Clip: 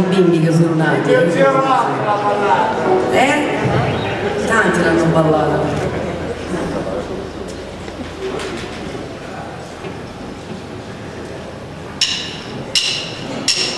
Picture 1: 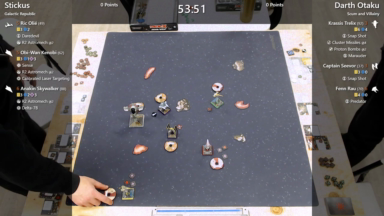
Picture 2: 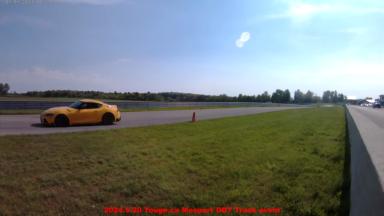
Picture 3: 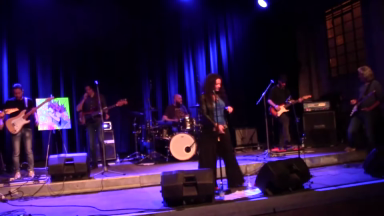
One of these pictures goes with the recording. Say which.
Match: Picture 3